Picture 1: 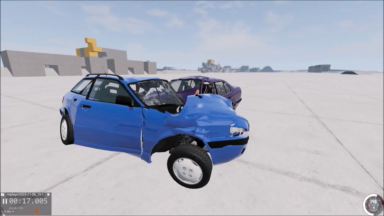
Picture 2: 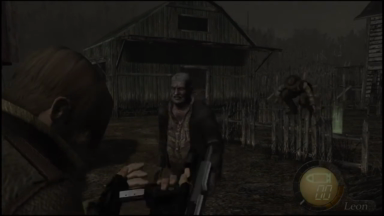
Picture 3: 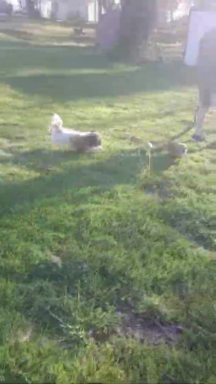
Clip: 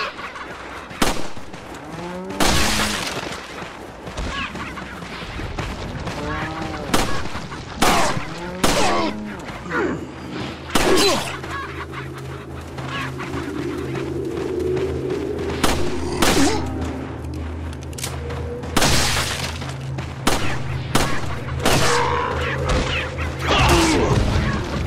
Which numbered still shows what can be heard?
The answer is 2